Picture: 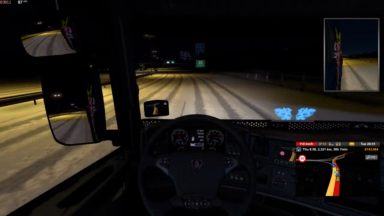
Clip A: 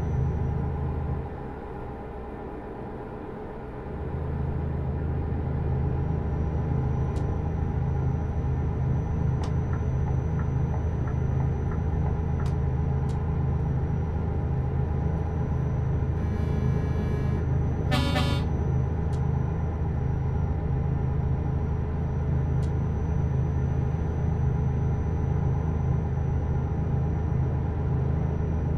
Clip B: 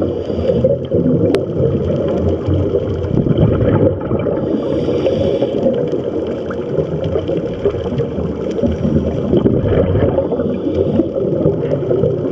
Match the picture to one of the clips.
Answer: A